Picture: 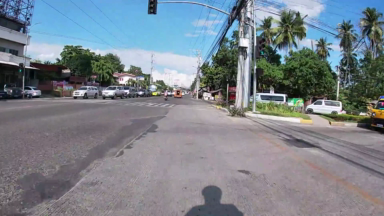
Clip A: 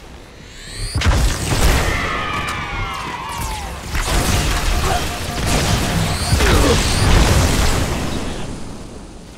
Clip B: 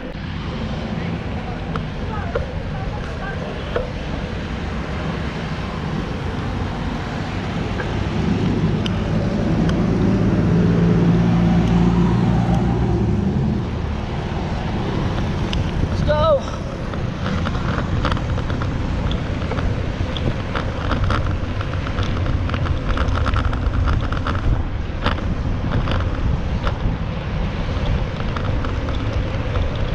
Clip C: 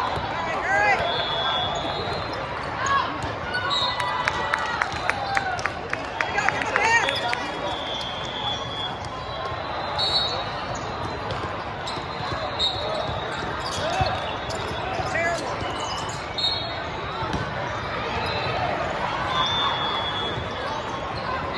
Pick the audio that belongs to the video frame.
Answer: B